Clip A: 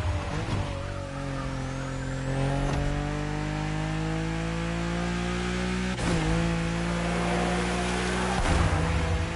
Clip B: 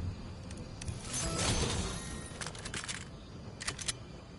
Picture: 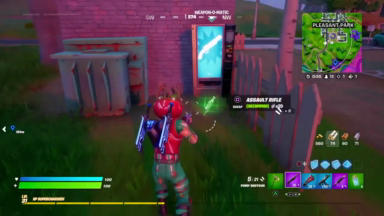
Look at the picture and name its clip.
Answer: B